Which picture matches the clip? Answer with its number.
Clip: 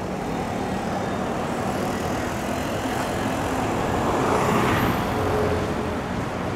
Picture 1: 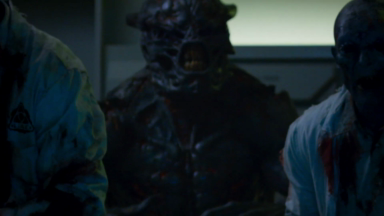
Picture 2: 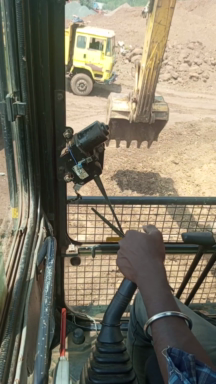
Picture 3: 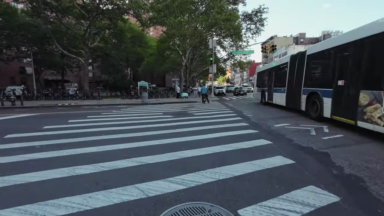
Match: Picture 3